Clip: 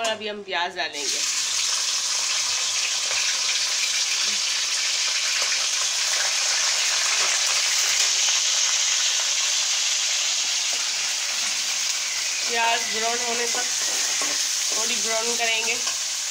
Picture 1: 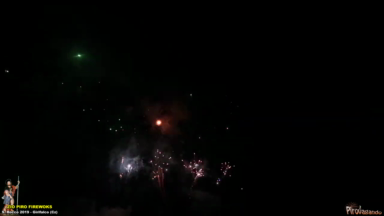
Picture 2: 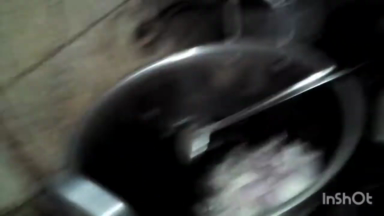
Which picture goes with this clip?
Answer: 2